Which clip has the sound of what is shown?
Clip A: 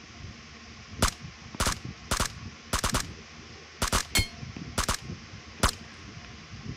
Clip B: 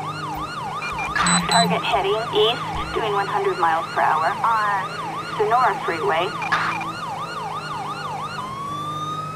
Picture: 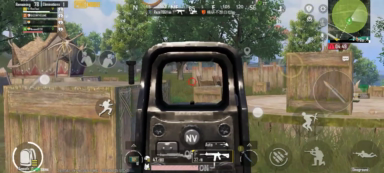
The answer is A